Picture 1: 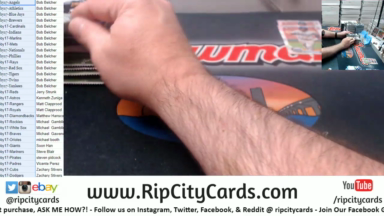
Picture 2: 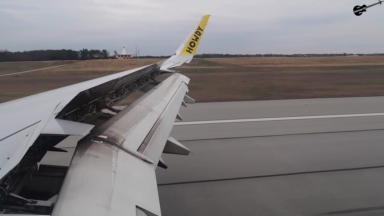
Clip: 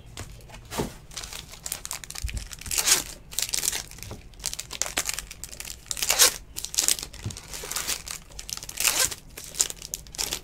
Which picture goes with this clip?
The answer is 1